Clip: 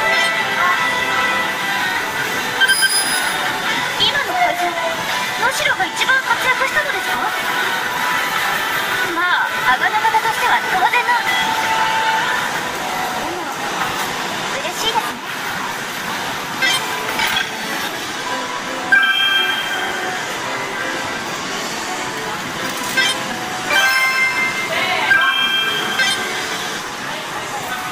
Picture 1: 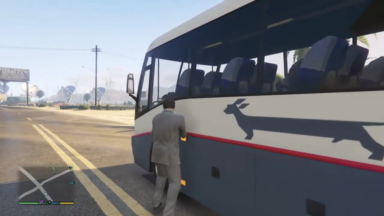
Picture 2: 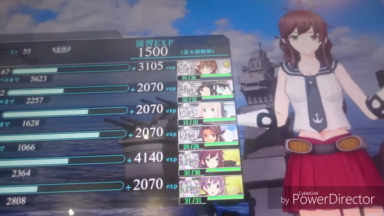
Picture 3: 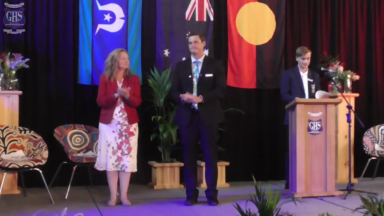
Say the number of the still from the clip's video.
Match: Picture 2